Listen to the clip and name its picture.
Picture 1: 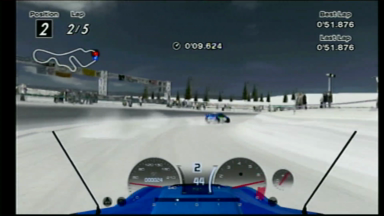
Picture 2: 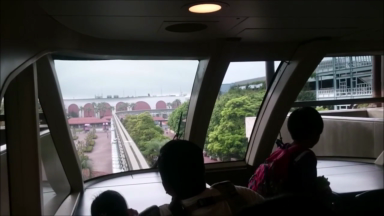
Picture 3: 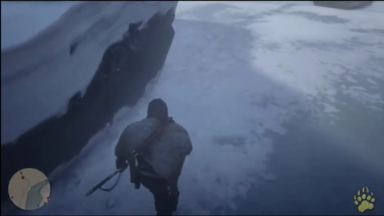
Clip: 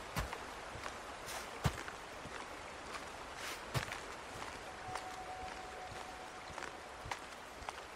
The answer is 3